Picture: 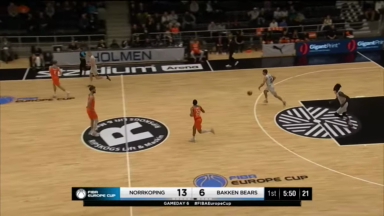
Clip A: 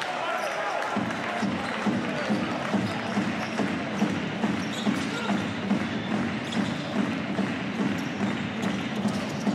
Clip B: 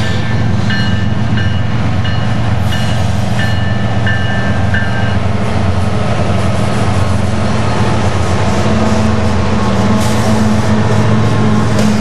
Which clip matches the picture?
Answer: A